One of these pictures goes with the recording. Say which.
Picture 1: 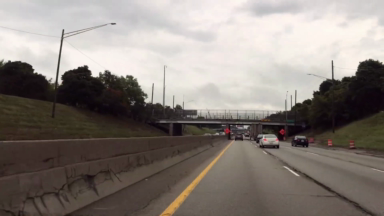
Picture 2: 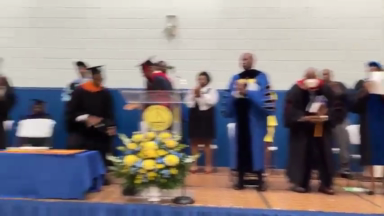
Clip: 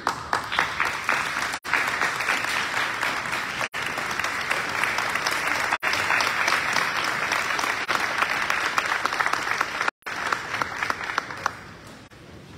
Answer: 2